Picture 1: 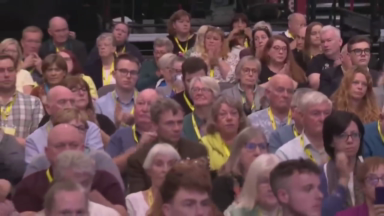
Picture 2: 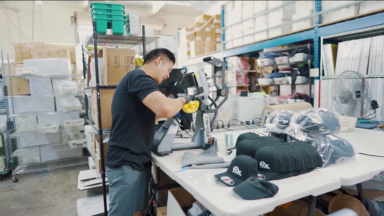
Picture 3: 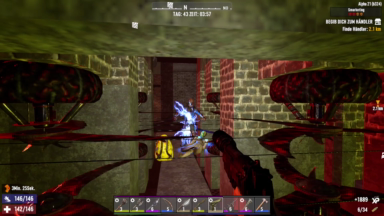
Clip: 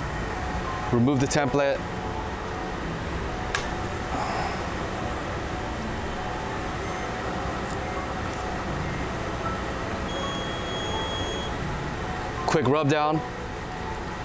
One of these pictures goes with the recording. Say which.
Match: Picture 2